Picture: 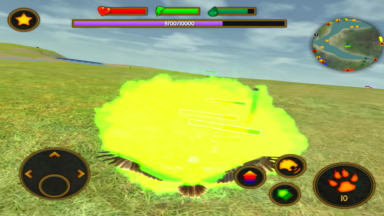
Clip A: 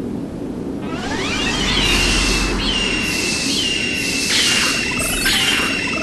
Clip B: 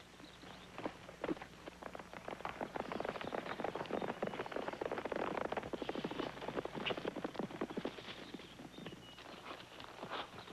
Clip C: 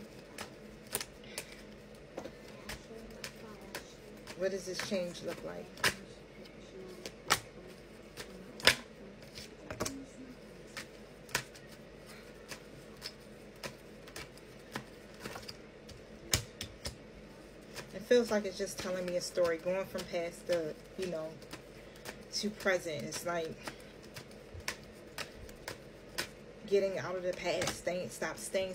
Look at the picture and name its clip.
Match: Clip A